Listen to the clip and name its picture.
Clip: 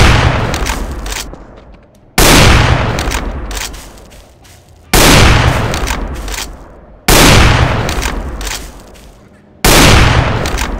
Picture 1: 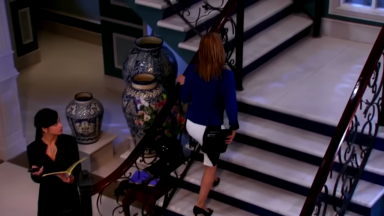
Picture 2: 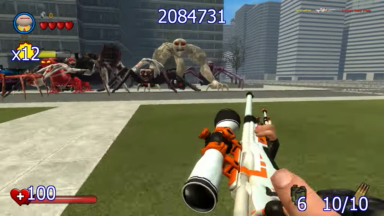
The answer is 2